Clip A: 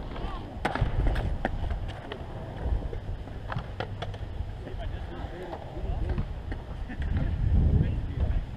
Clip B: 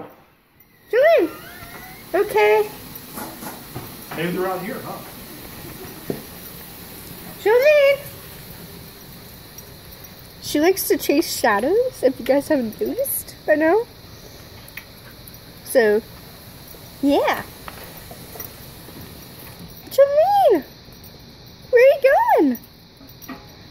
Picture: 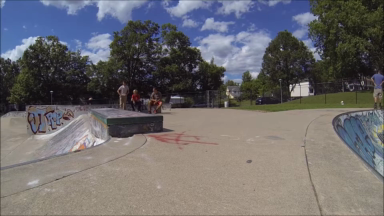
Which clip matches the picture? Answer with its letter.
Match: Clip A